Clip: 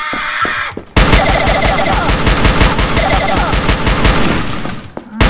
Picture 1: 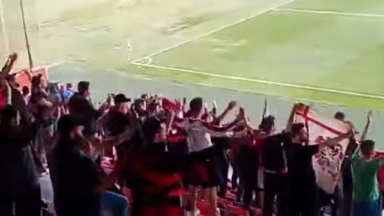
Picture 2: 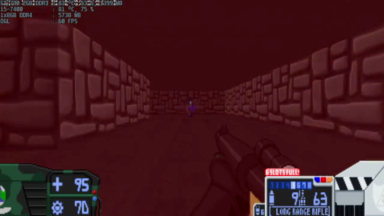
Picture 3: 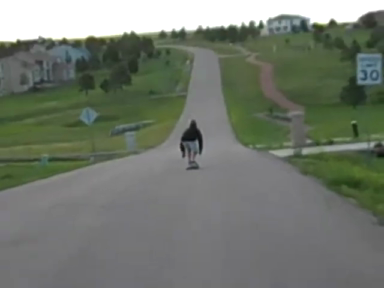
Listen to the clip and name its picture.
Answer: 2